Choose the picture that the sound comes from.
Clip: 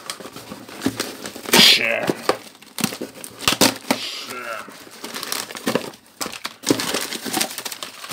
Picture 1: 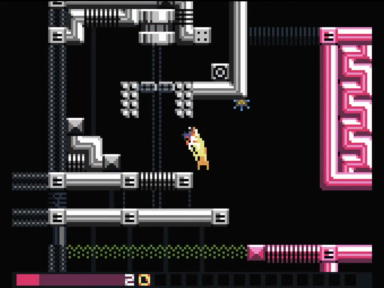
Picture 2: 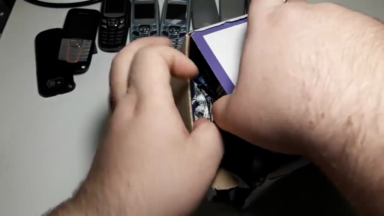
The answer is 2